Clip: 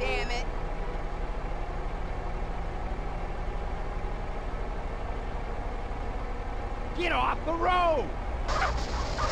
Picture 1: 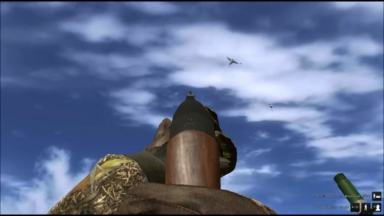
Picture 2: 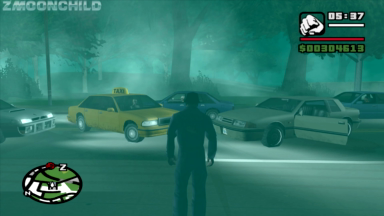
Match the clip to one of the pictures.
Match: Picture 2